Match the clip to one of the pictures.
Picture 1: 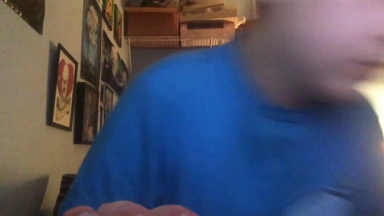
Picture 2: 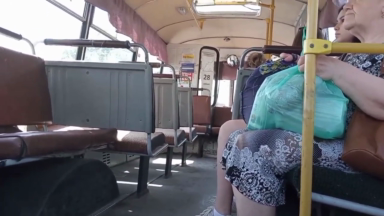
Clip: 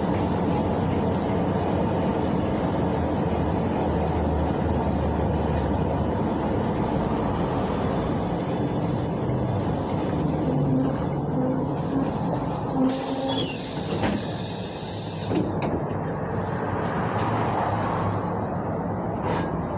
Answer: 2